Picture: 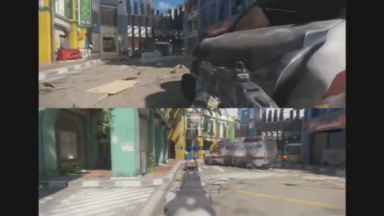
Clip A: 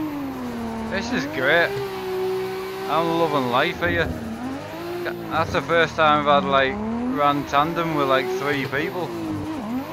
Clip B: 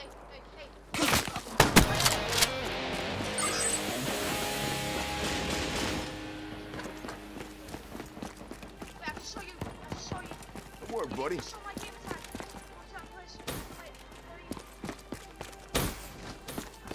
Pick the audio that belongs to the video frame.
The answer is B